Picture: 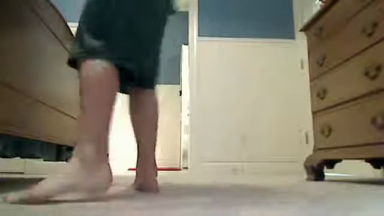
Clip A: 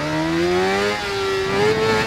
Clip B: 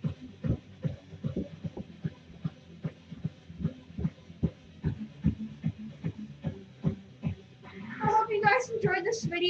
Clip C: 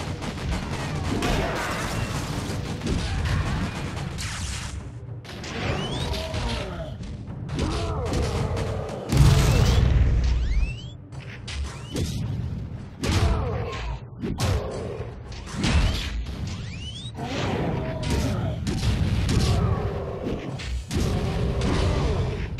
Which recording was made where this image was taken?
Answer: B